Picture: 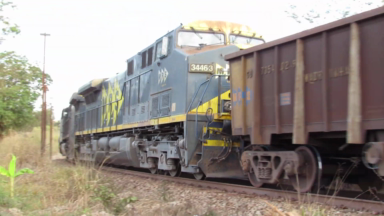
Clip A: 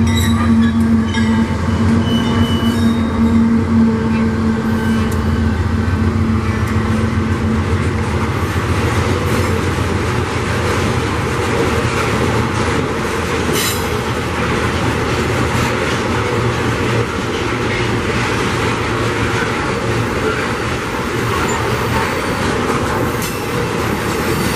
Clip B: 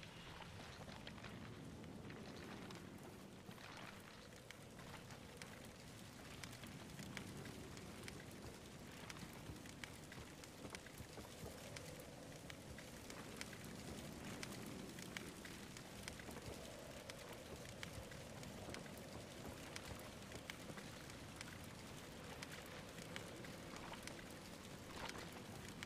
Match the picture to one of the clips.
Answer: A